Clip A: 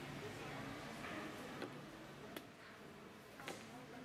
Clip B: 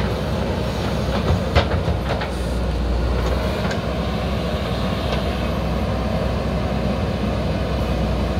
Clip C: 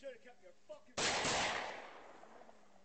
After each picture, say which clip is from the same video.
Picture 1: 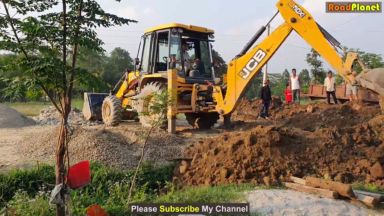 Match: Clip B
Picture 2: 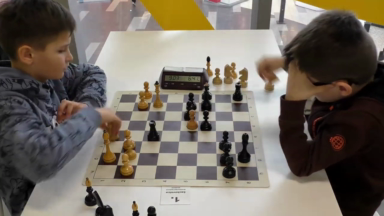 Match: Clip A